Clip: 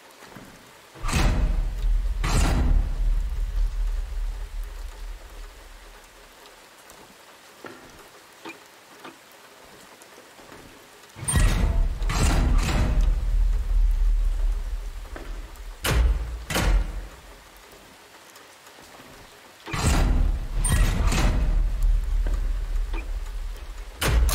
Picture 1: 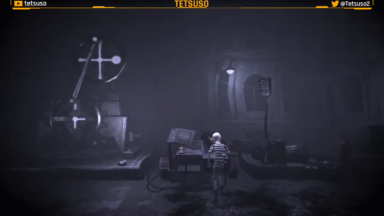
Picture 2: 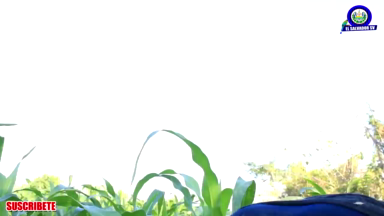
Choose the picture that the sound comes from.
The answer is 1